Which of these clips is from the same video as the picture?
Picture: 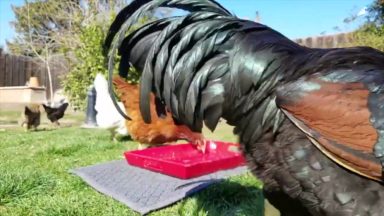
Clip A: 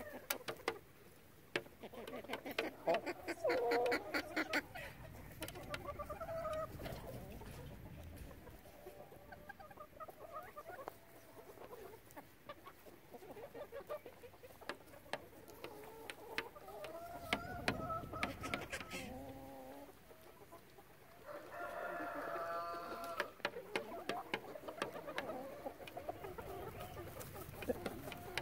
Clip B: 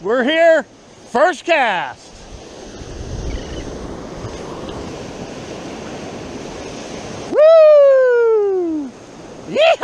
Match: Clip A